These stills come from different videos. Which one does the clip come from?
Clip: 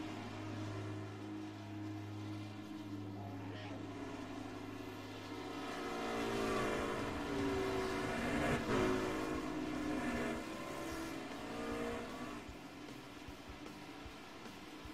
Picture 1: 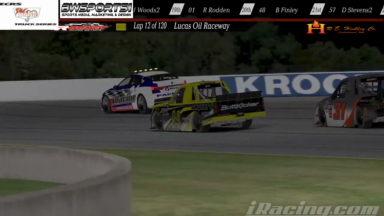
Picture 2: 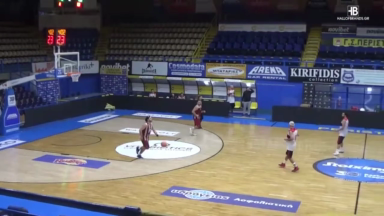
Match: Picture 1